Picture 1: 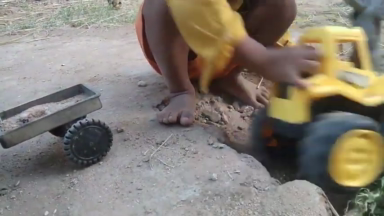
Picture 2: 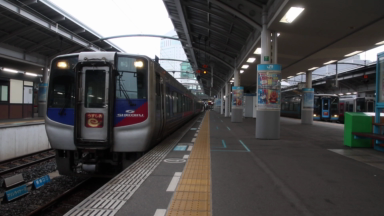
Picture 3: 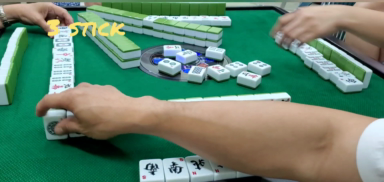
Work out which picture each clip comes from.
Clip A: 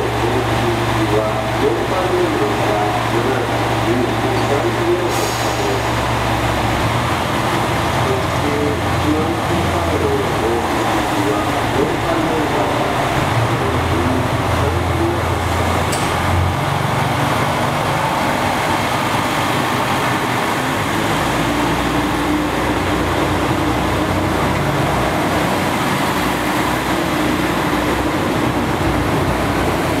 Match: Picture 2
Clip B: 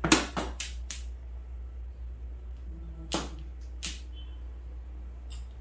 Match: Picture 3